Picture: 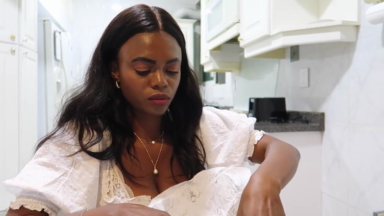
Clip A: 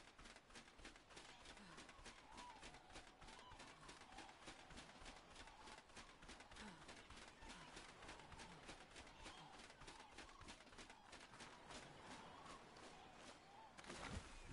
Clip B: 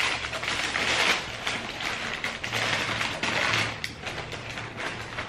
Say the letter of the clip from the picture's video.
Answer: B